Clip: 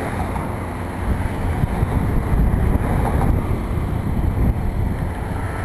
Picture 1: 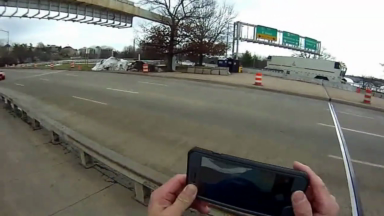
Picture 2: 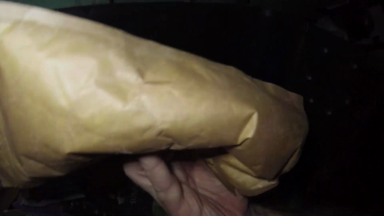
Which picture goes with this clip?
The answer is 1